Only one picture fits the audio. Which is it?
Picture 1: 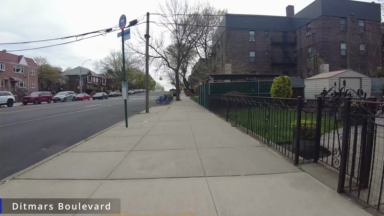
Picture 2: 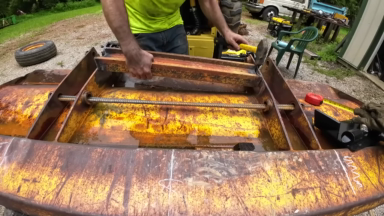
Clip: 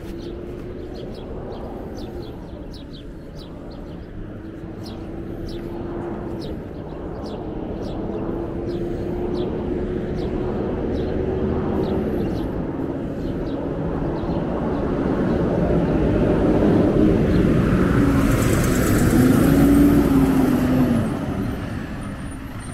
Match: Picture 1